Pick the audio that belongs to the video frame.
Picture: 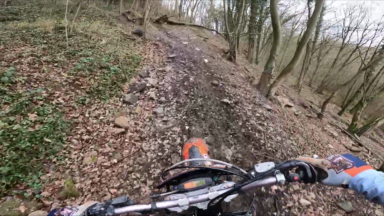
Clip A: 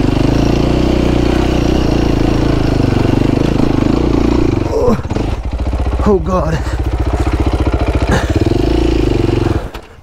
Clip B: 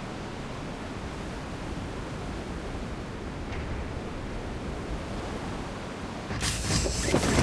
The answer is A